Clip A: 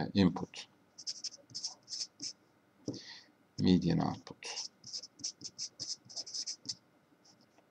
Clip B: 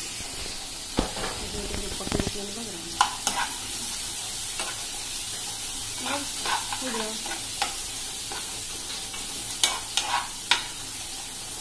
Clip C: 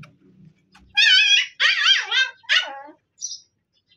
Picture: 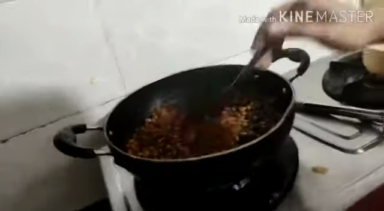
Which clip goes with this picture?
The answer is B